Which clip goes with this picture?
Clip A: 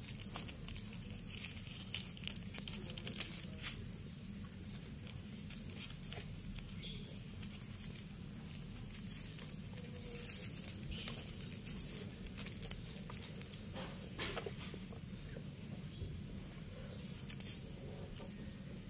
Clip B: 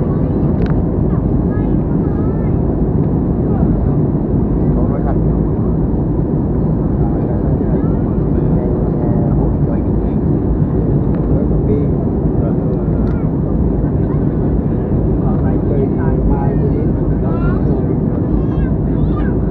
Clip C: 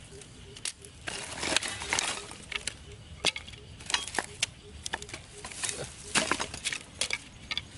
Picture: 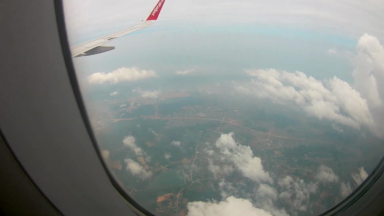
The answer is B